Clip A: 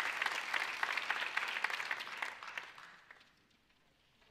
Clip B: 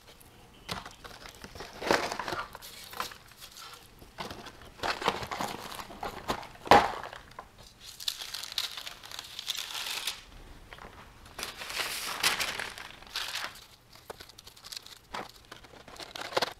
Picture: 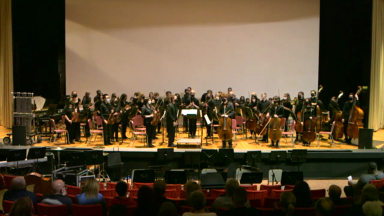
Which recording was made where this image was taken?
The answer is A